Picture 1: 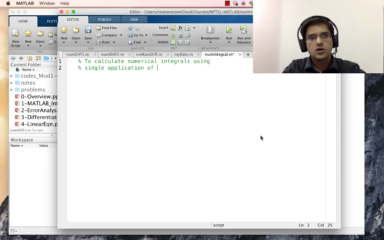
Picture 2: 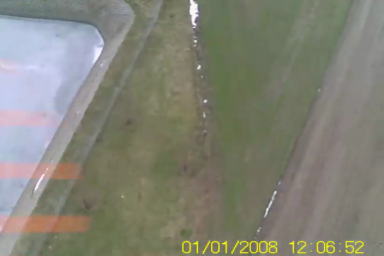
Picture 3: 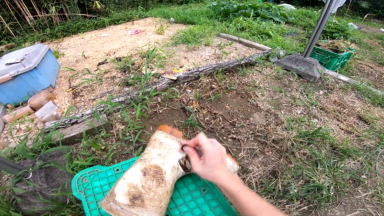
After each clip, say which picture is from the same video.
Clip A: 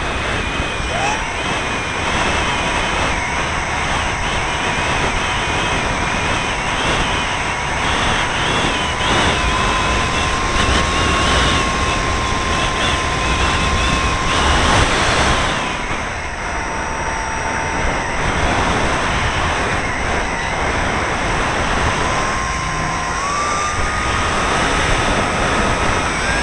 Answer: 2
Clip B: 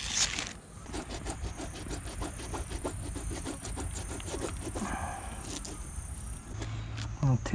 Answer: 3